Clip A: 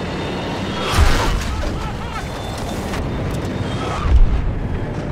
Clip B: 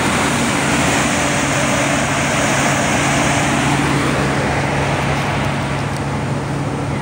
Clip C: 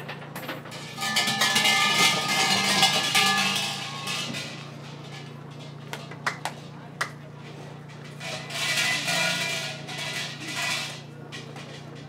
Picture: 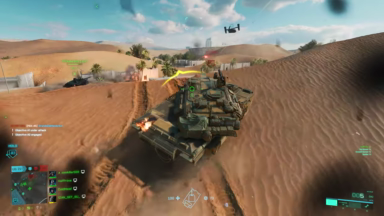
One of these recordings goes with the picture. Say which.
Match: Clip A